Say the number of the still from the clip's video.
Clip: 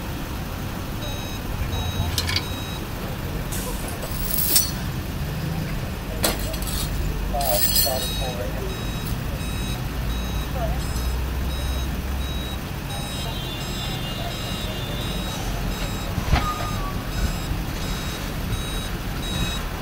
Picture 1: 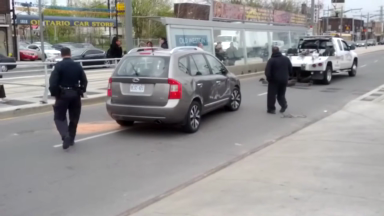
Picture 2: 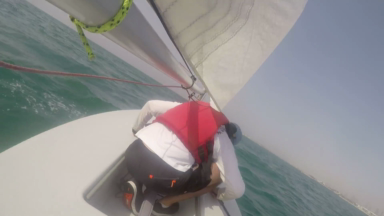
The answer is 1